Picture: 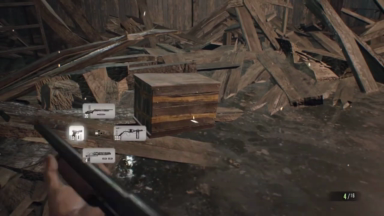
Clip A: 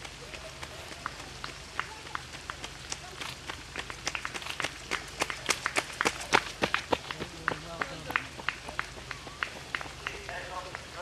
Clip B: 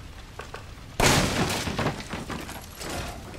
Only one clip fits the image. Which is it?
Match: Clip B